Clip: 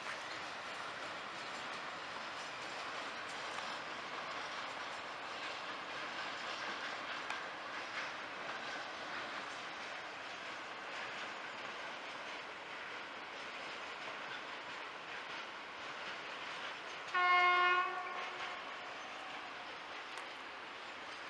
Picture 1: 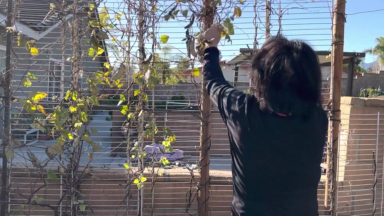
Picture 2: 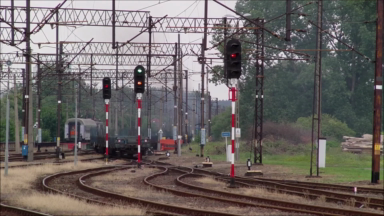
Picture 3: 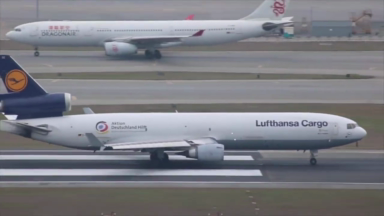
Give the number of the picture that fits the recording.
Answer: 2